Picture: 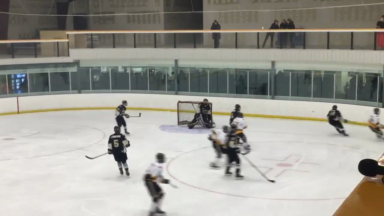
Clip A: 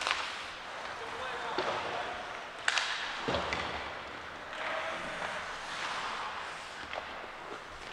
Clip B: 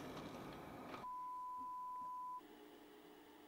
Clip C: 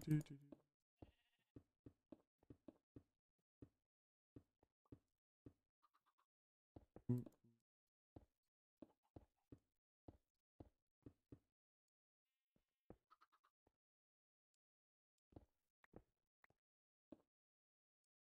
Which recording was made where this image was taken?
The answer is A